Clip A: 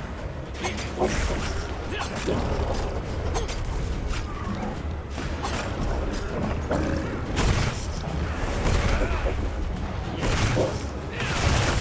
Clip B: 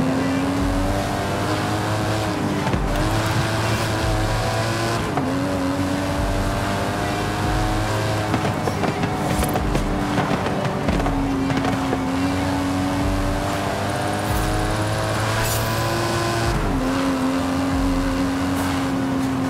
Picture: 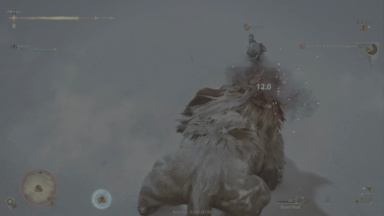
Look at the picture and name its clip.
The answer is A